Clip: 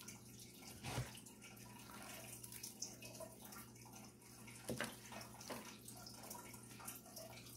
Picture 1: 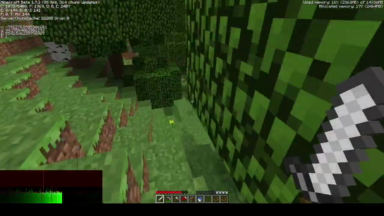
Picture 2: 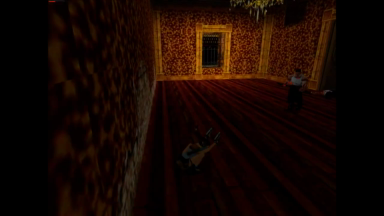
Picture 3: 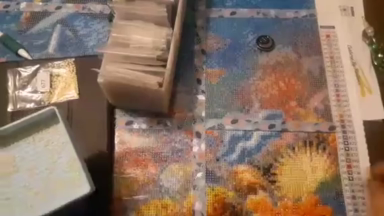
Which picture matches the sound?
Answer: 3